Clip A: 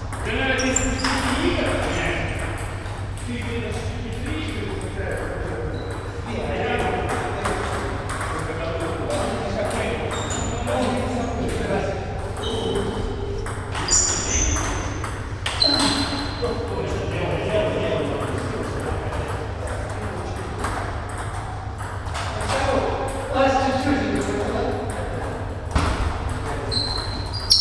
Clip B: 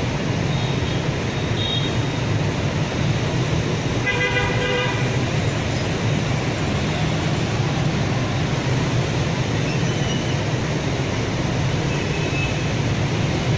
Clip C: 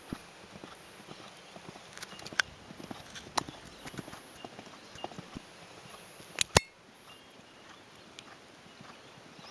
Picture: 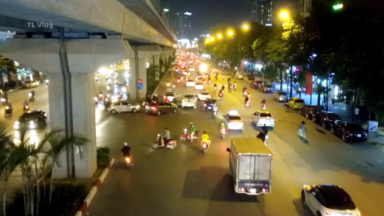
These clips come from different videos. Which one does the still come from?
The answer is B